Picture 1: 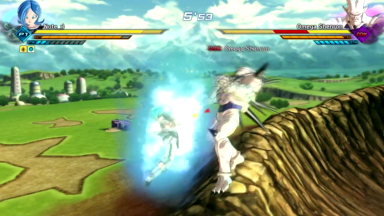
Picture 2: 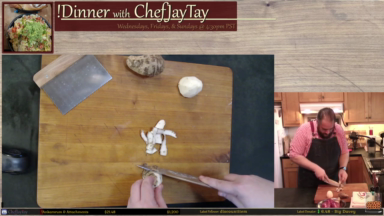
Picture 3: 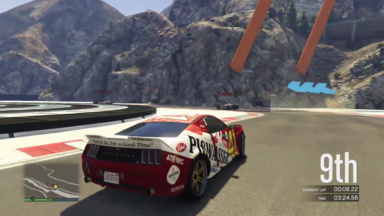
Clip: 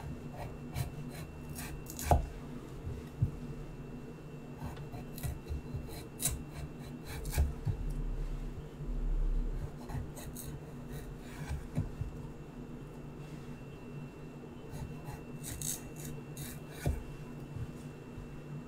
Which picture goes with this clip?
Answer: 2